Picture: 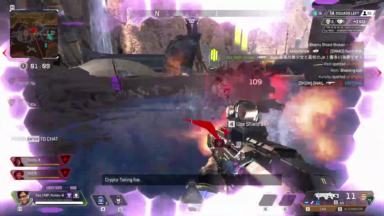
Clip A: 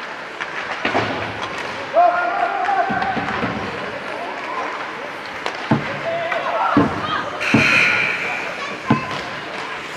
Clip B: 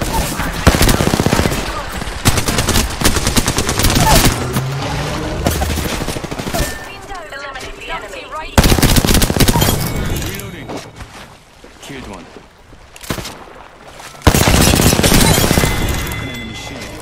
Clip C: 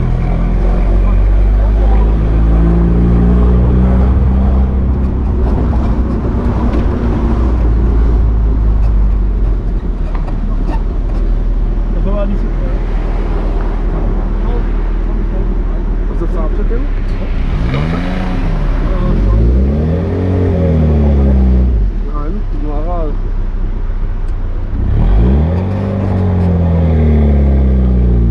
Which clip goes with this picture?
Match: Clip B